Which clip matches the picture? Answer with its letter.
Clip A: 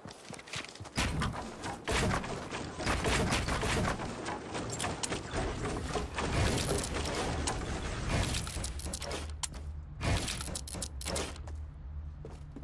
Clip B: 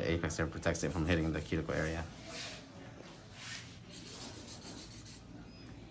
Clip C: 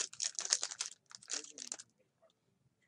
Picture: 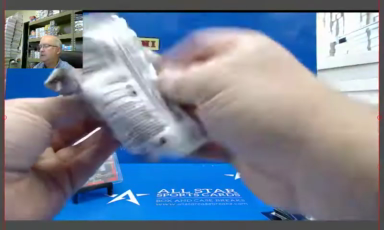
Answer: C